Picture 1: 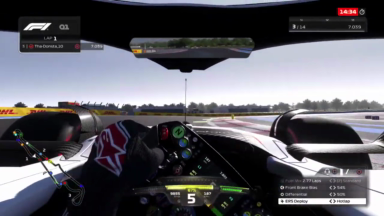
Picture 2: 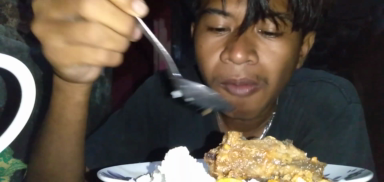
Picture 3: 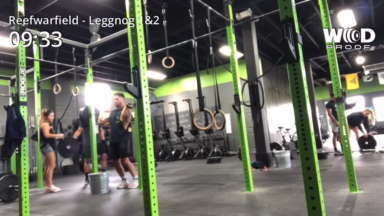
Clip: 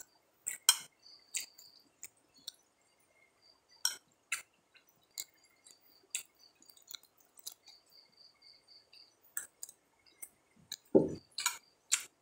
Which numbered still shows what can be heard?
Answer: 2